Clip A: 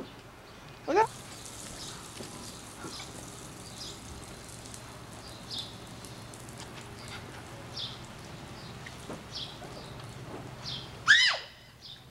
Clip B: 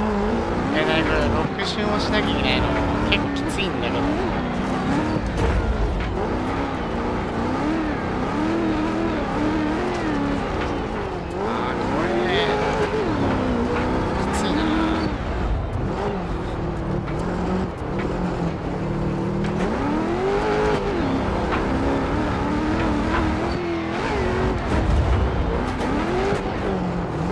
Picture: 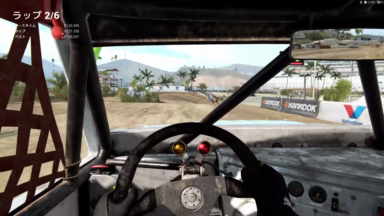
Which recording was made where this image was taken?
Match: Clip B